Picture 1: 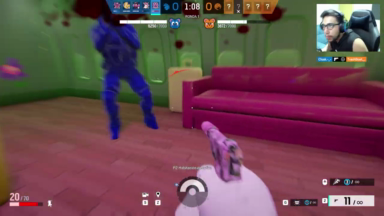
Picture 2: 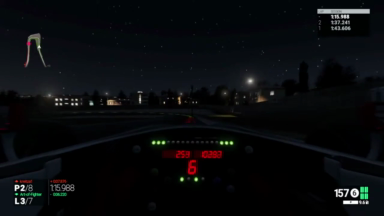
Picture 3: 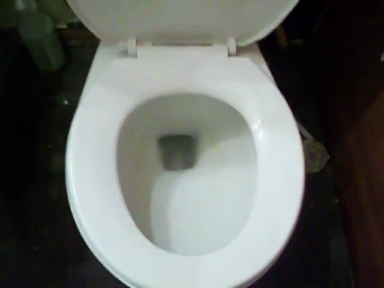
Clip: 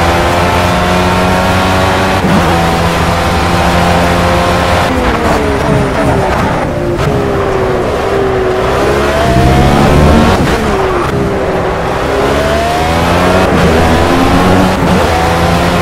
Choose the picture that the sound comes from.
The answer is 2